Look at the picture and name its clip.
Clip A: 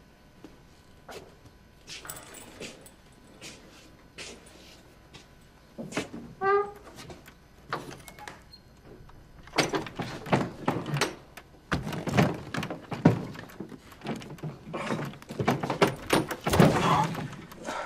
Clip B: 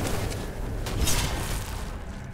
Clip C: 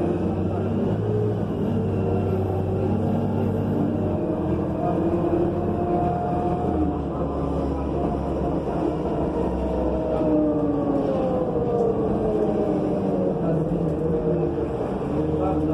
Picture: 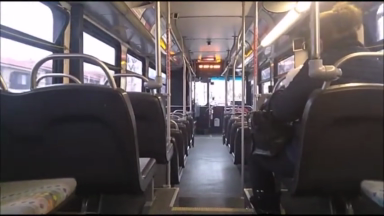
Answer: C